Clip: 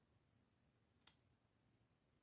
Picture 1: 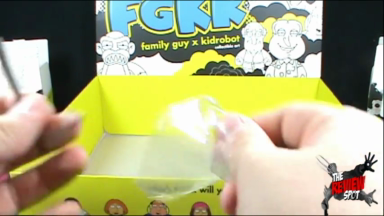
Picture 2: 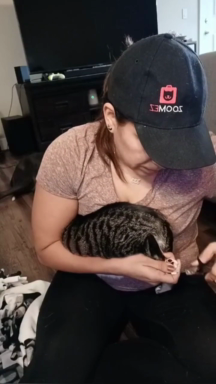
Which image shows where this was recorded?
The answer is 2